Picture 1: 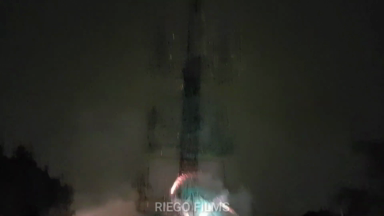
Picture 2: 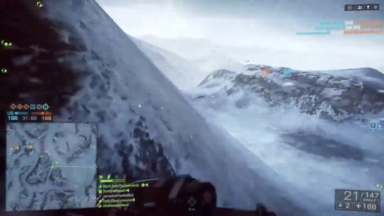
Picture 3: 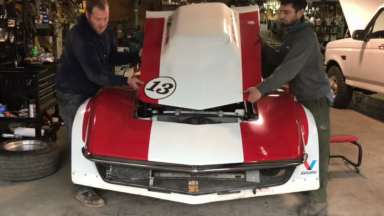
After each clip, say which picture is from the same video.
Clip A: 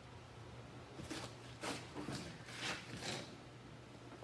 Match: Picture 3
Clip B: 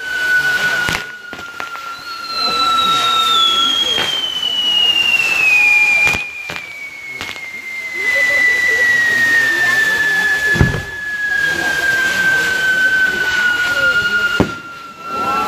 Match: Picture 1